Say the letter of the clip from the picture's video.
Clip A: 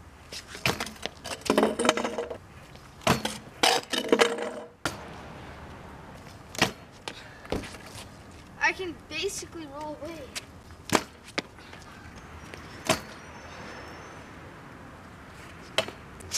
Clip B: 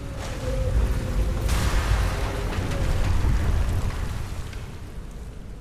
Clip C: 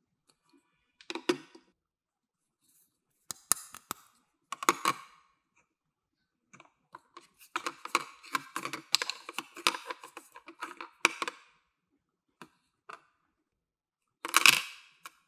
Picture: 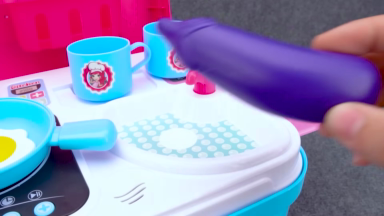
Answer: C